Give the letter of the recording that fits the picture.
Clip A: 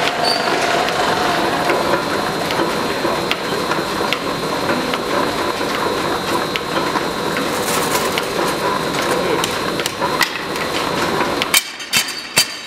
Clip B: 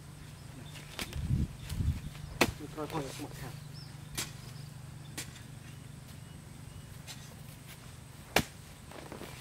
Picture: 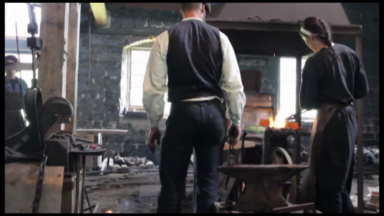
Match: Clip A